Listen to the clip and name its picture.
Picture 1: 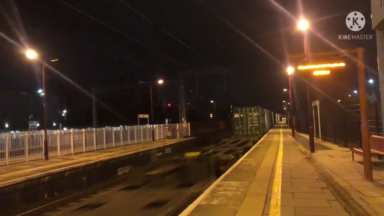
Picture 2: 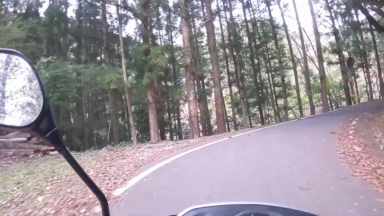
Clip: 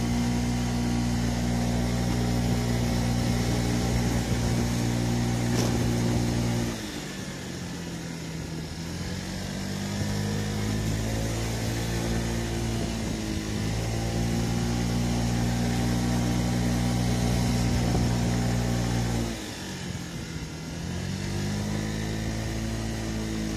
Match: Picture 2